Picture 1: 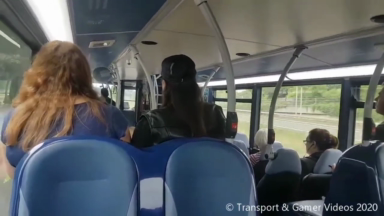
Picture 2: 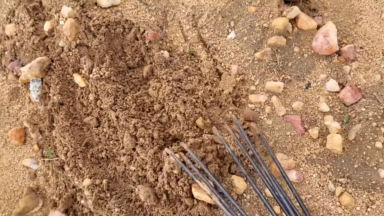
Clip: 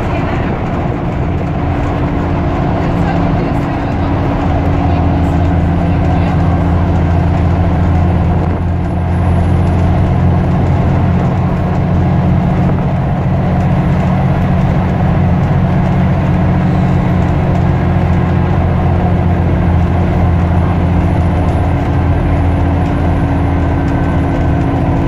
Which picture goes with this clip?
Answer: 1